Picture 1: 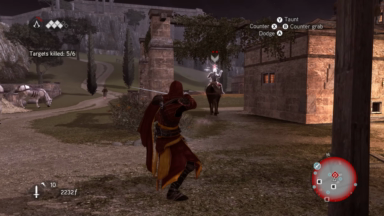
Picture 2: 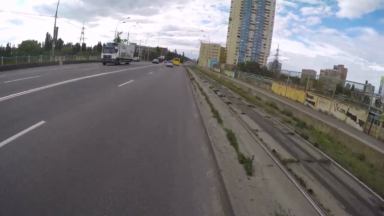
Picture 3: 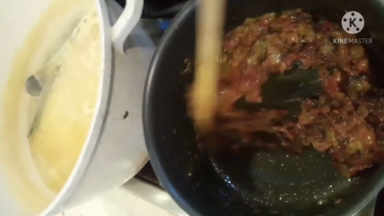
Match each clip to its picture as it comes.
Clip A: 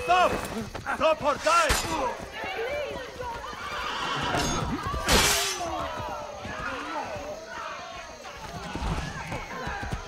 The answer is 1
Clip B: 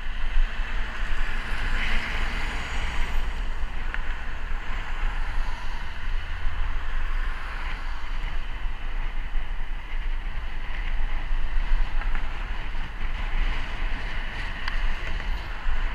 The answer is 2